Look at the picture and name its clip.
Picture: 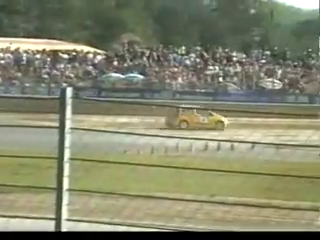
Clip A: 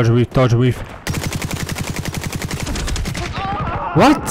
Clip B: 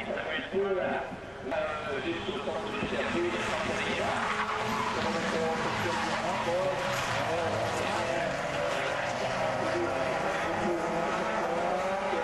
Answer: B